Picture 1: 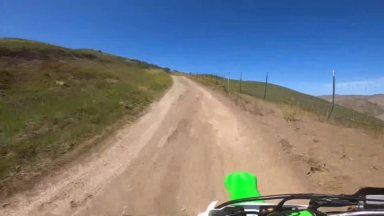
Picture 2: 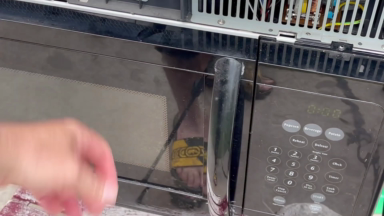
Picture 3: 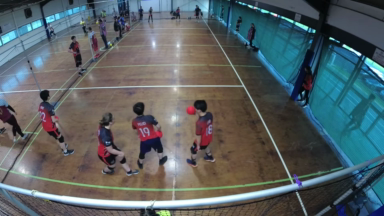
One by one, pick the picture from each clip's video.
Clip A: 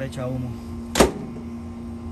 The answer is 2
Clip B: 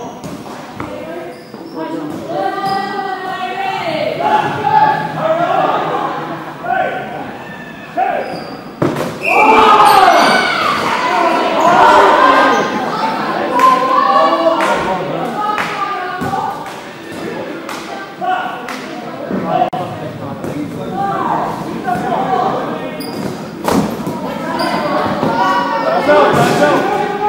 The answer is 3